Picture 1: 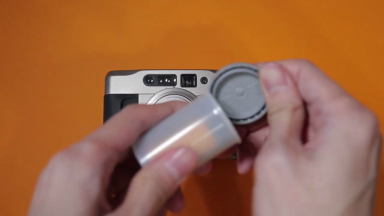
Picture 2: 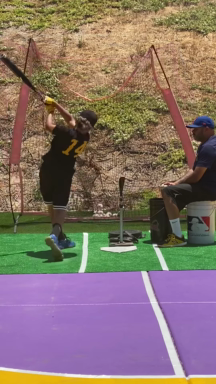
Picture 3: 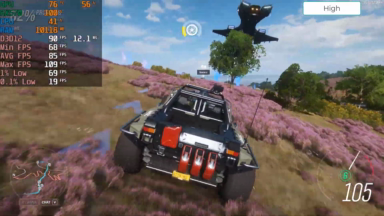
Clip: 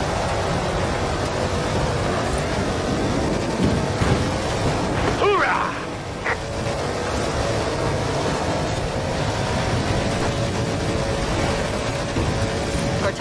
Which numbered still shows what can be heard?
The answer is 3